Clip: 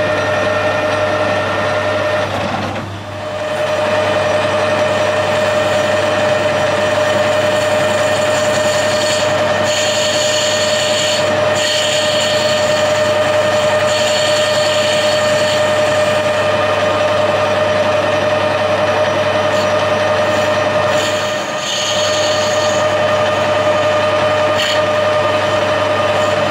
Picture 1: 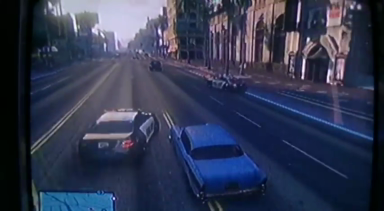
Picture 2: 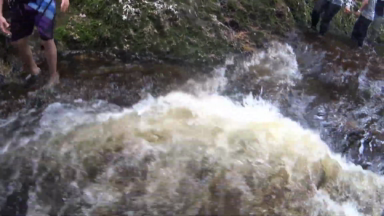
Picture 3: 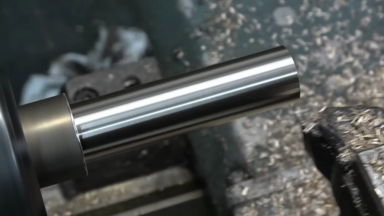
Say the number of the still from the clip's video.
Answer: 3